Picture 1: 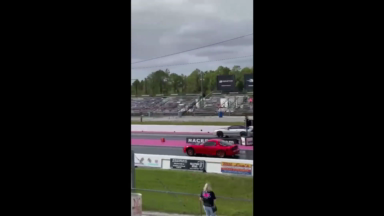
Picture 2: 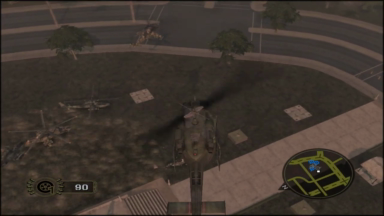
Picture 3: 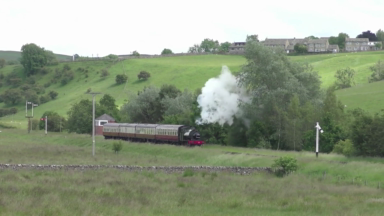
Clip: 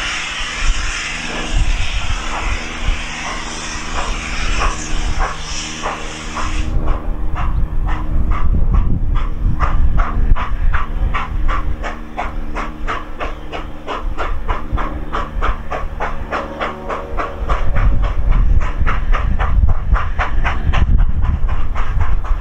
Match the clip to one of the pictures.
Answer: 3